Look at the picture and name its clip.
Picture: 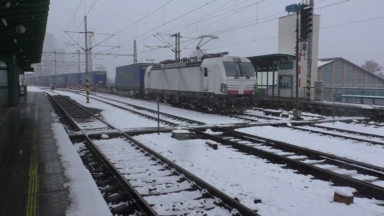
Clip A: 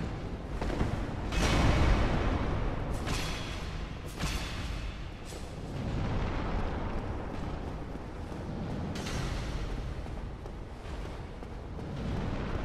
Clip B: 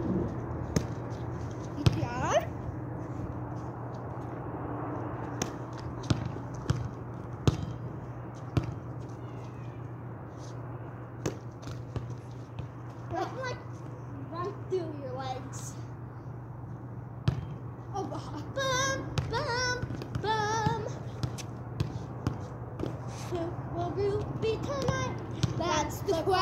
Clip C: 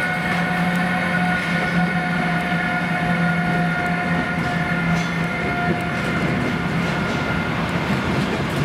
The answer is C